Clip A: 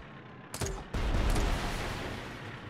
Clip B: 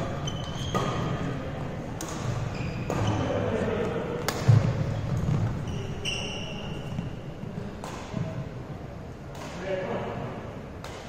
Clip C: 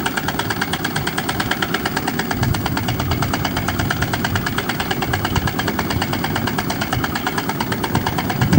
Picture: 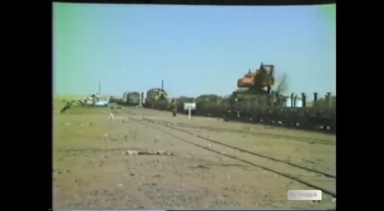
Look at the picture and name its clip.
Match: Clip C